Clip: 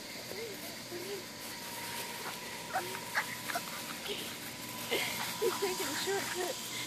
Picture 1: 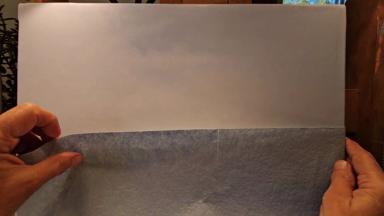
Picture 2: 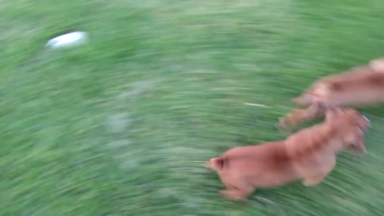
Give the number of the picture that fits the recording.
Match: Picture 2